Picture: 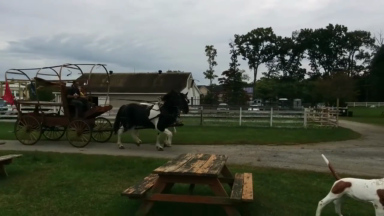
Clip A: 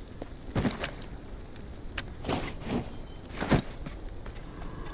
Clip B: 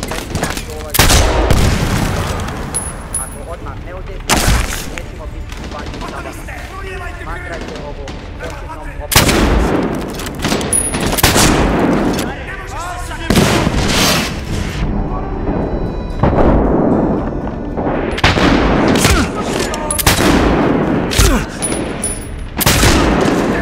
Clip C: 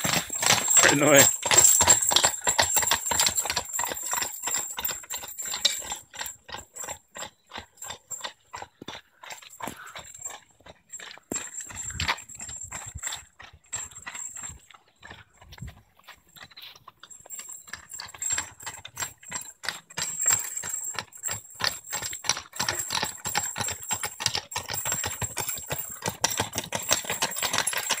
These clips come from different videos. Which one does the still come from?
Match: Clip C